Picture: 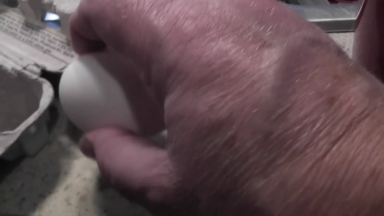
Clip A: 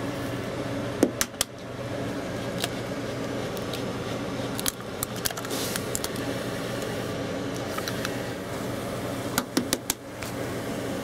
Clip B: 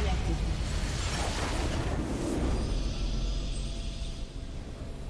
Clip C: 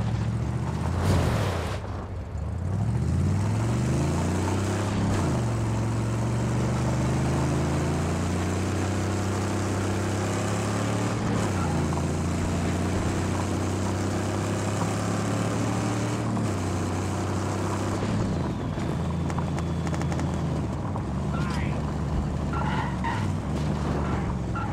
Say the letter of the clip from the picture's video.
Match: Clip A